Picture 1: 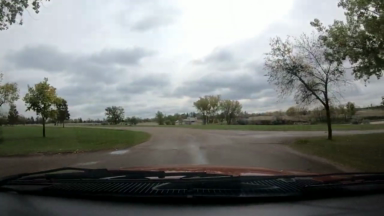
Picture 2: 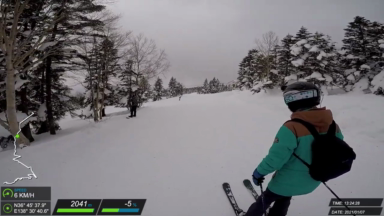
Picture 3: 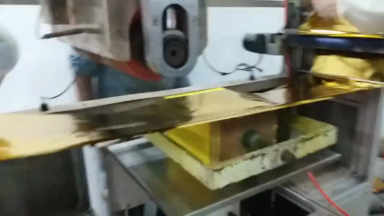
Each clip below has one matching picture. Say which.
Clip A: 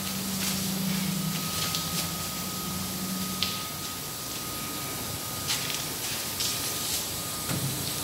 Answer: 3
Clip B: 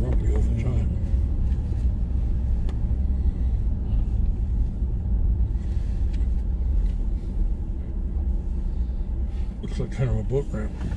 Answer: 1